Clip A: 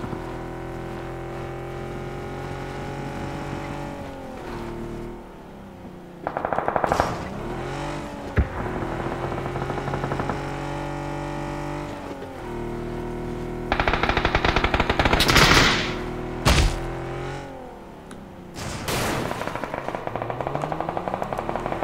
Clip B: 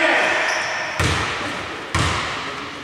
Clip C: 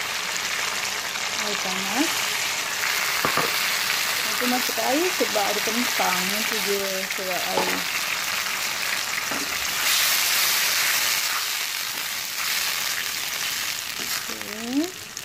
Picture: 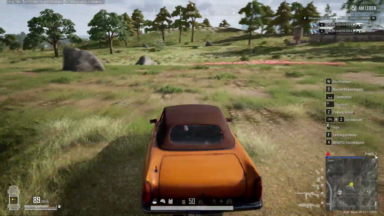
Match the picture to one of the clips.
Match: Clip A